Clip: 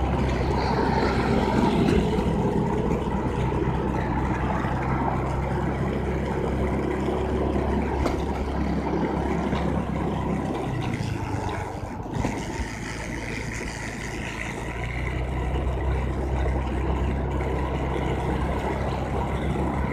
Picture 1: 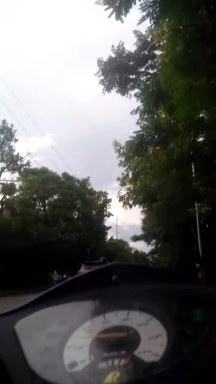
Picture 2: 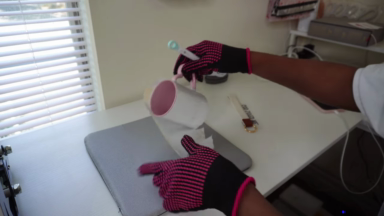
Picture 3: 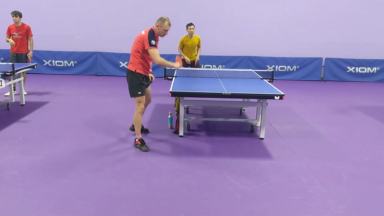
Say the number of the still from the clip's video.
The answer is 1